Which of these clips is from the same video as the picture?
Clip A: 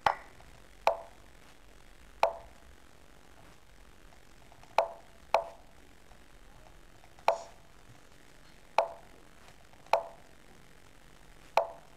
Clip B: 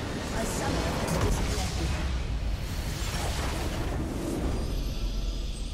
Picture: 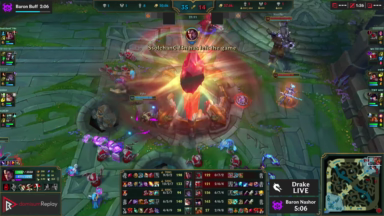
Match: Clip B